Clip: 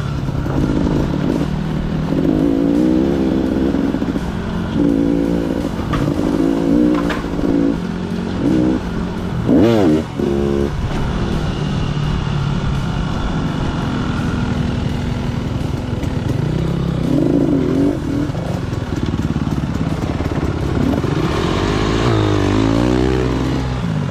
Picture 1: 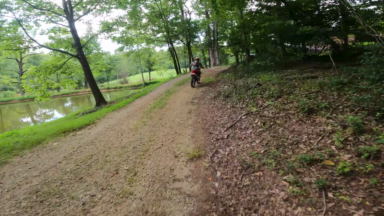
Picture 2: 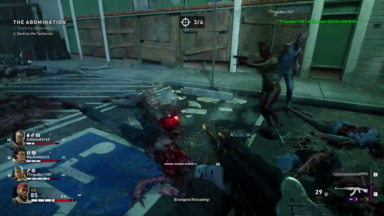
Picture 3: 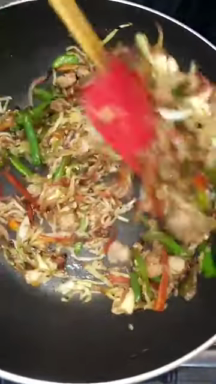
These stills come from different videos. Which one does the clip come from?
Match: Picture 1